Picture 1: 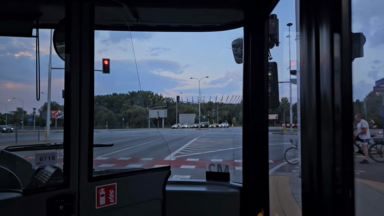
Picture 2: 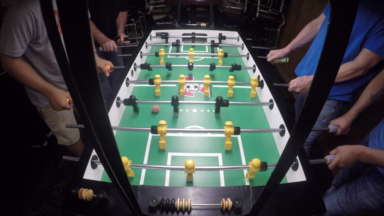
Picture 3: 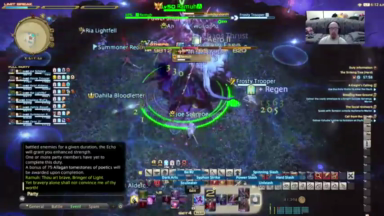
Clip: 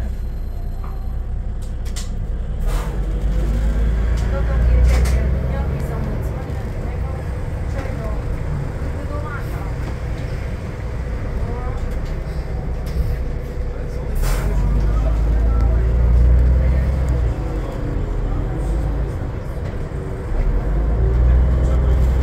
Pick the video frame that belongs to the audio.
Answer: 1